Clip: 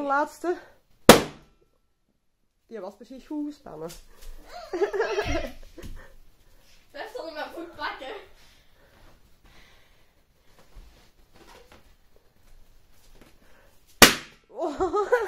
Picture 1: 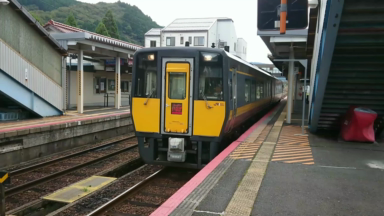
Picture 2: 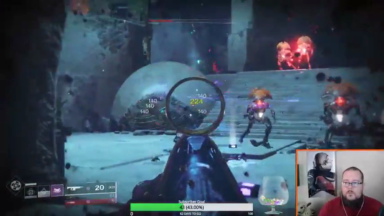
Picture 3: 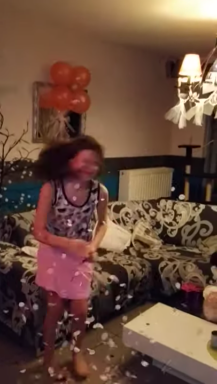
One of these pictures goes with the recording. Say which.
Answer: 3